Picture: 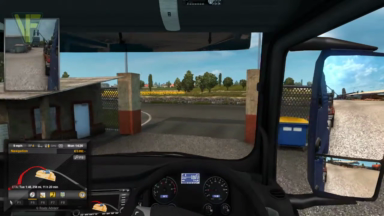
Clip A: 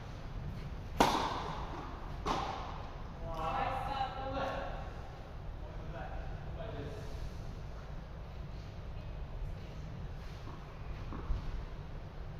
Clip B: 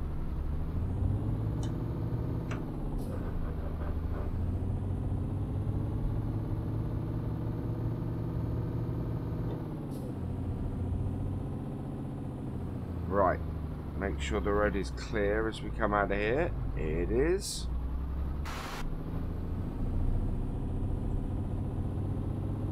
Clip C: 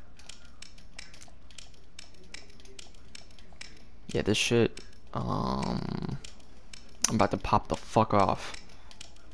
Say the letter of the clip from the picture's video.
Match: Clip B